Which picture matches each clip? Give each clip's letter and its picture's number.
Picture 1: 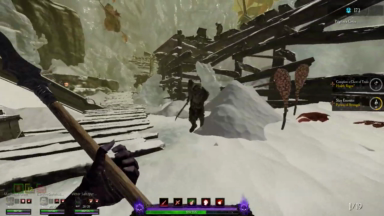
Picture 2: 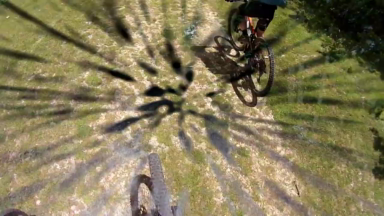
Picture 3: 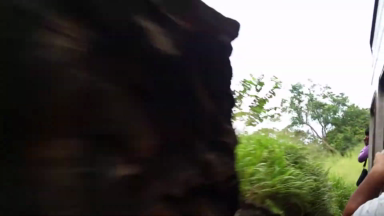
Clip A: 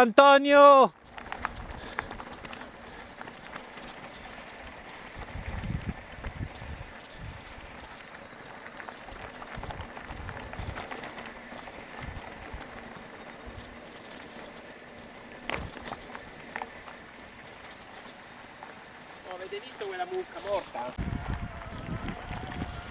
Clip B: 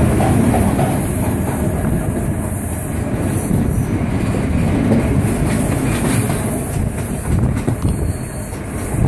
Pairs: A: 2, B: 3